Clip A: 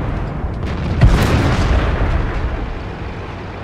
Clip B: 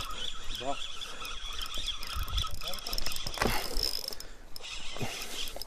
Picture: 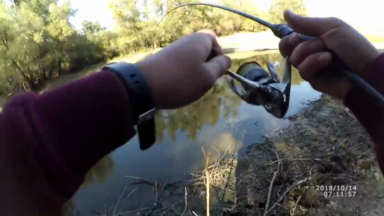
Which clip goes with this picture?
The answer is B